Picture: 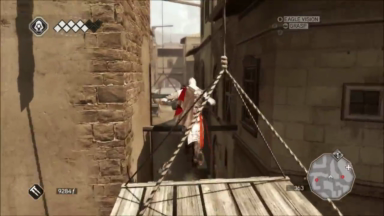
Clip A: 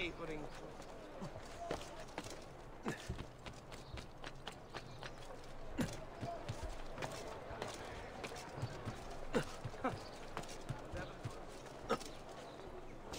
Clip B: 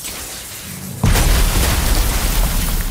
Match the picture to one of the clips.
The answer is A